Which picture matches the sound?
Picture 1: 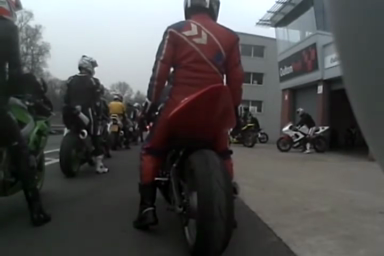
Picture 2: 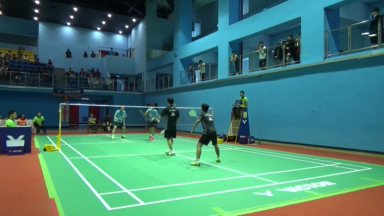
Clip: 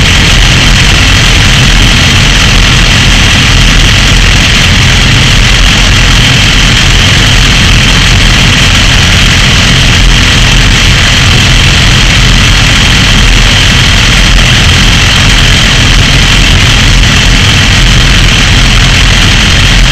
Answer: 1